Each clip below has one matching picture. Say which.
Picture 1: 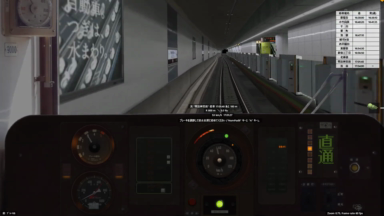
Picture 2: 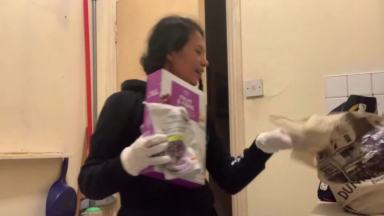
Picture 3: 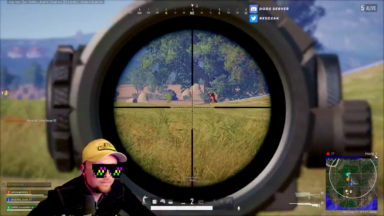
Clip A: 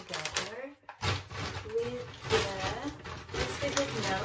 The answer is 2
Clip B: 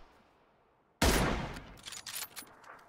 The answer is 3